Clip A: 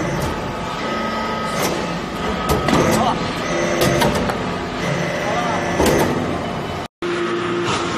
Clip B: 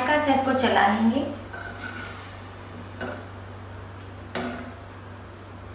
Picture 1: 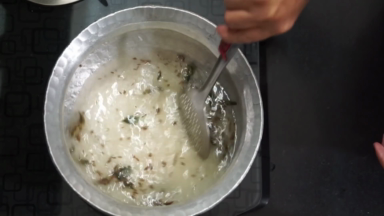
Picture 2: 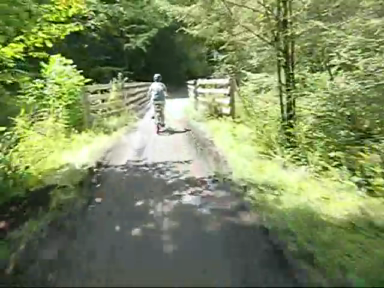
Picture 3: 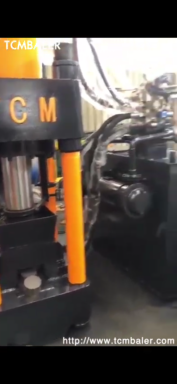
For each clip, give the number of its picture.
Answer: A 3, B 1